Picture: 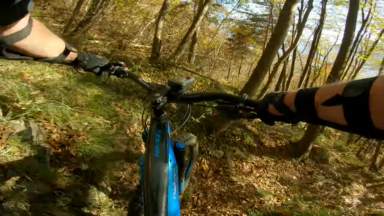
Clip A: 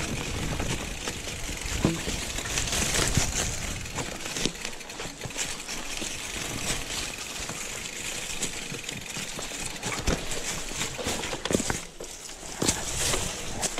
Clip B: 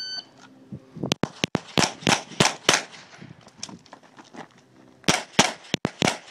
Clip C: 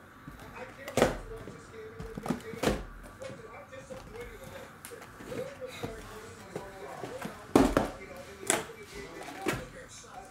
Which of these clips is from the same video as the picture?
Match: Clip A